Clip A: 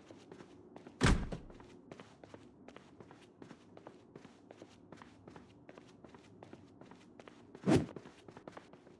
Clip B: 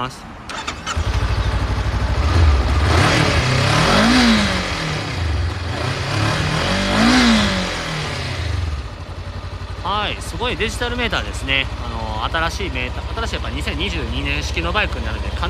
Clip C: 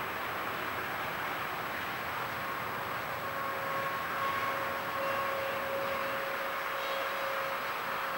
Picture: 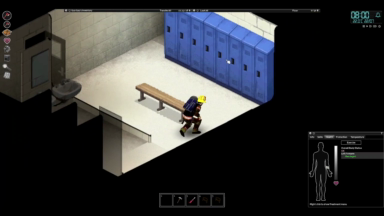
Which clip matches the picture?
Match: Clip A